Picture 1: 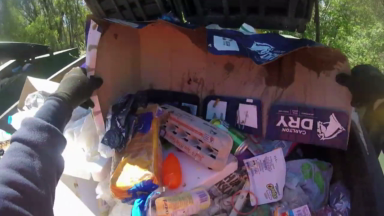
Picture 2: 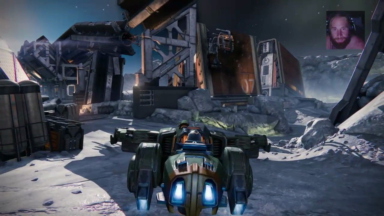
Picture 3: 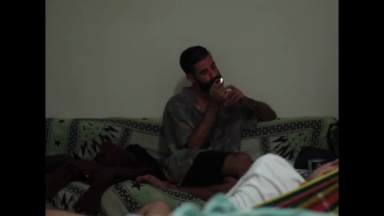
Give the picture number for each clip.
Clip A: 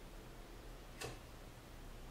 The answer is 3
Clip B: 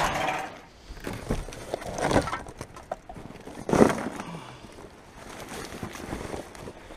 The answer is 1